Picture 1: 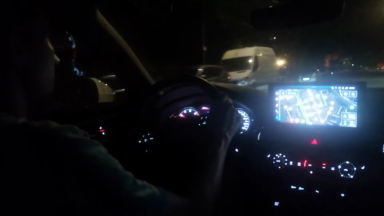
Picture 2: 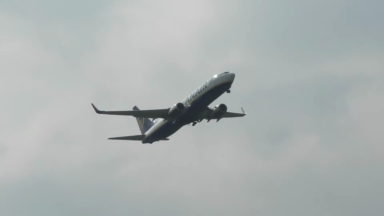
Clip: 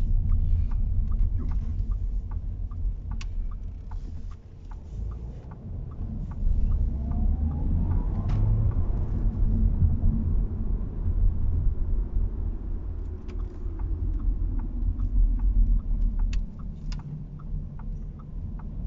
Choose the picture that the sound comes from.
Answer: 1